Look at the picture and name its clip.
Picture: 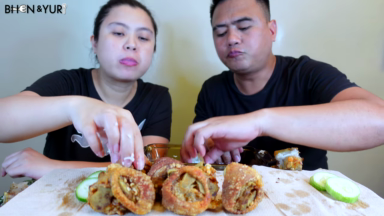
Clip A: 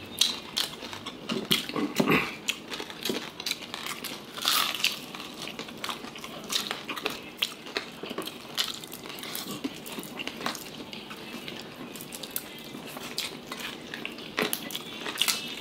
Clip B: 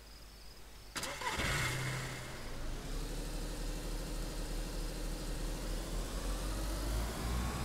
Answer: A